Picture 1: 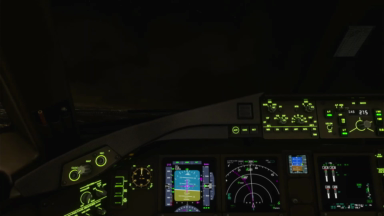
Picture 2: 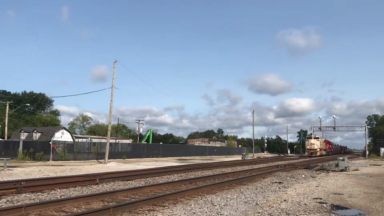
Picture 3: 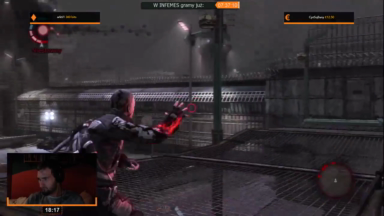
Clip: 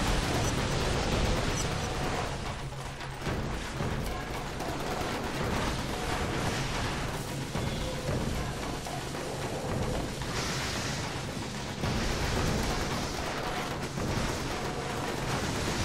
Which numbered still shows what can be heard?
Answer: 3